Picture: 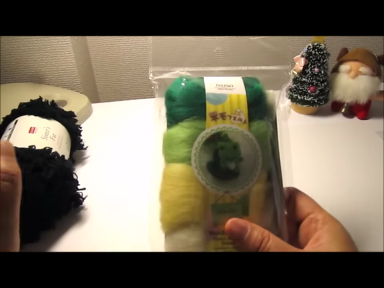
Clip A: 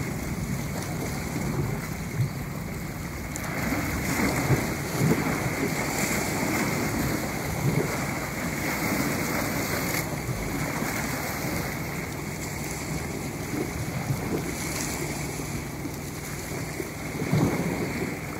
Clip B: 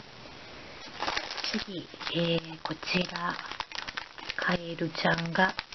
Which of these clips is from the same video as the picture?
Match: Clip B